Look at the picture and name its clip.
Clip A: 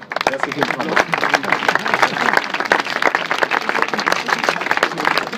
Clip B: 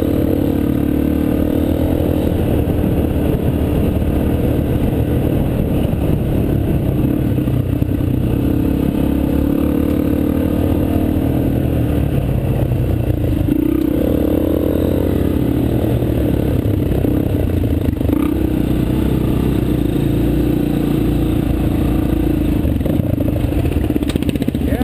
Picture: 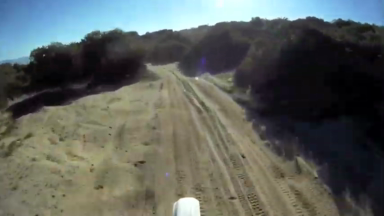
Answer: B